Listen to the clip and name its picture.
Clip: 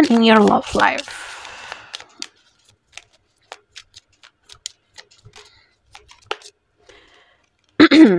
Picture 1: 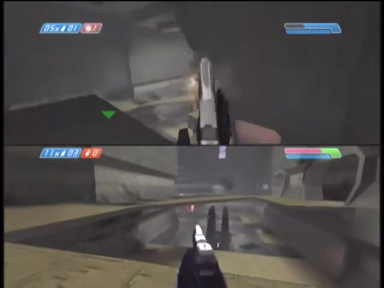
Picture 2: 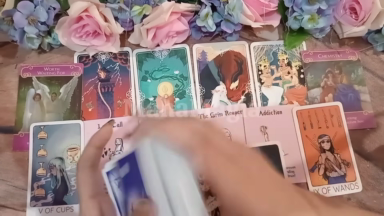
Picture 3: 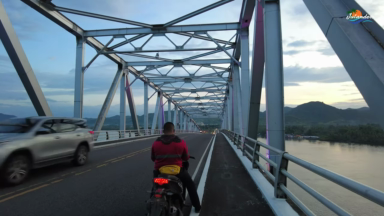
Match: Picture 2